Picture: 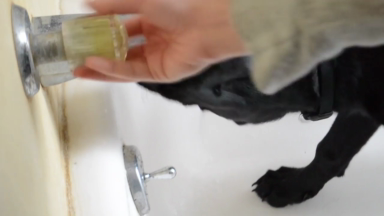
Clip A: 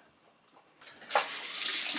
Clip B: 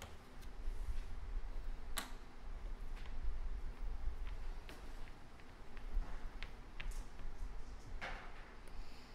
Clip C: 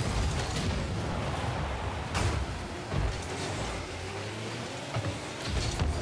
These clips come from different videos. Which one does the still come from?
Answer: A